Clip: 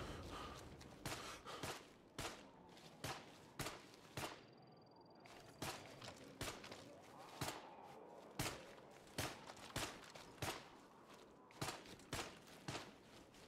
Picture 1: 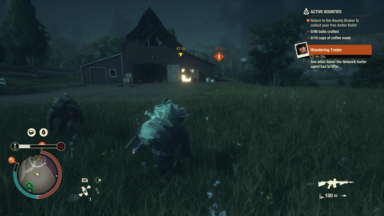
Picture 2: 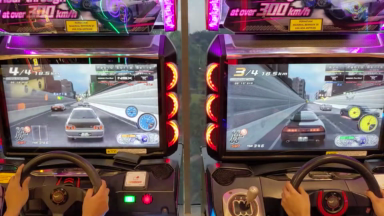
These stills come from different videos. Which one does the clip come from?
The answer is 1